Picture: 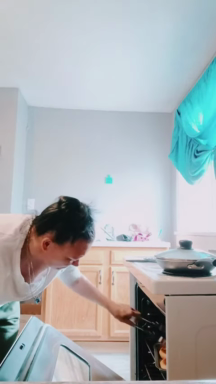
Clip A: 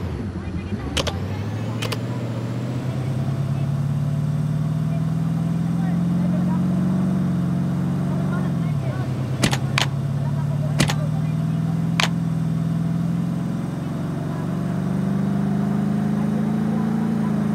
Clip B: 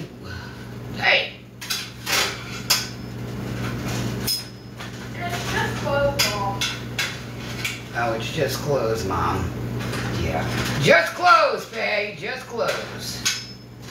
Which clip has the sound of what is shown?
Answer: B